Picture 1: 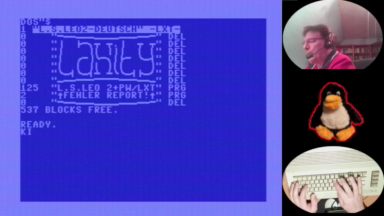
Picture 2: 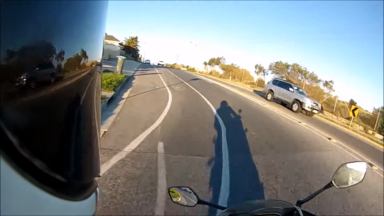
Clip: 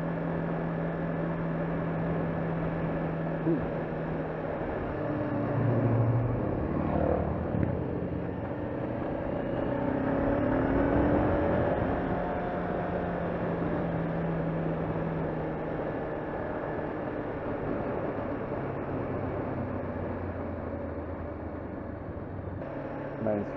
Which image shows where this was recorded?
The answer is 2